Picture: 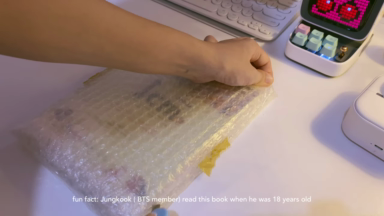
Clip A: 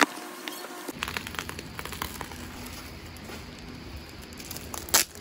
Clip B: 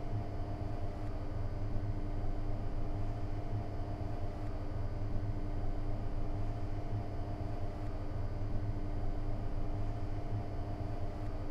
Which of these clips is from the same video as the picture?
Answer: A